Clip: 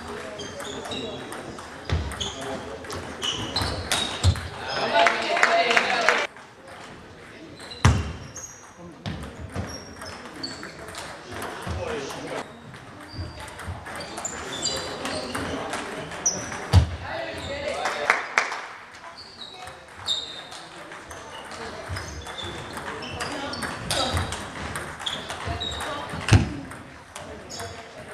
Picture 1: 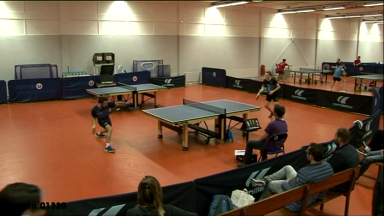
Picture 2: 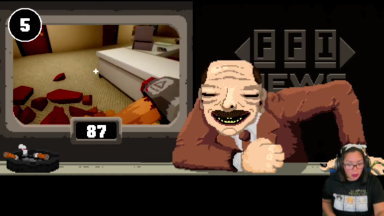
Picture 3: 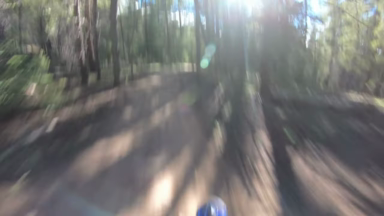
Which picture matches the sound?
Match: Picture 1